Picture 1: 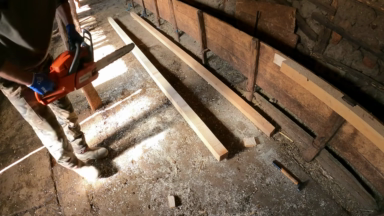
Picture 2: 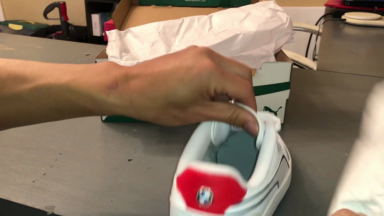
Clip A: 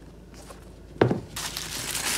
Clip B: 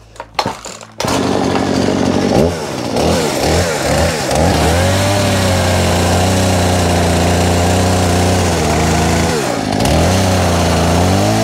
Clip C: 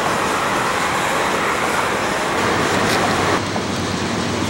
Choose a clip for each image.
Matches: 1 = B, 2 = A